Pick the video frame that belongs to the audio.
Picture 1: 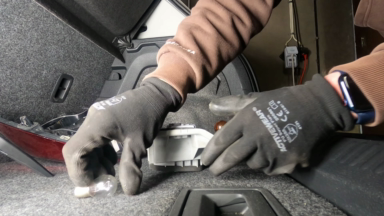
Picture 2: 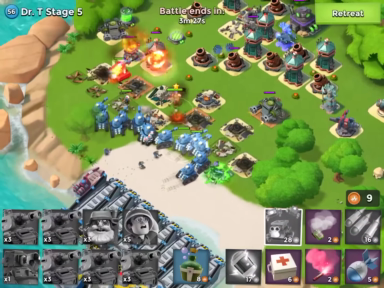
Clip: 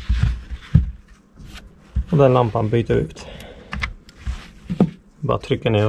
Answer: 1